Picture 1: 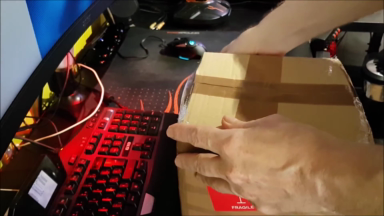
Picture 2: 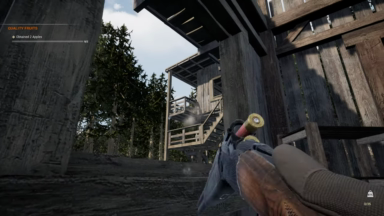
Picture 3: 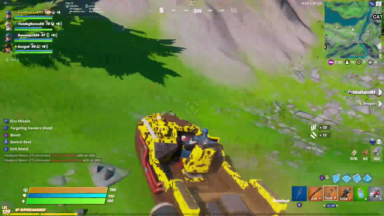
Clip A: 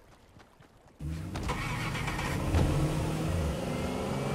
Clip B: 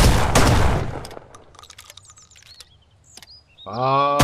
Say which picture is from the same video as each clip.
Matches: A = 3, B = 2